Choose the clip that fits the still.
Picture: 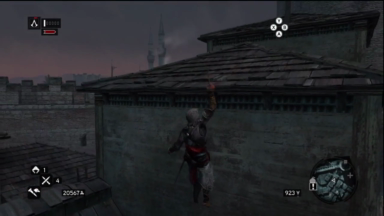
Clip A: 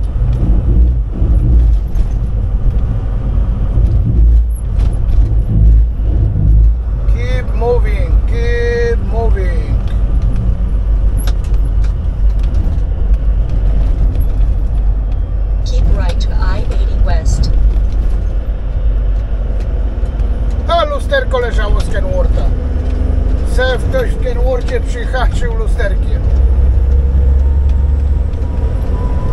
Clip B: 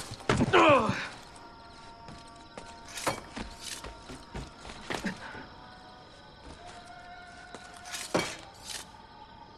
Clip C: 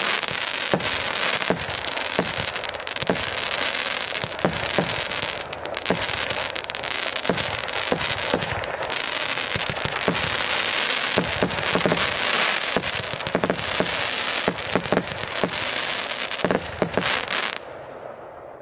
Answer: B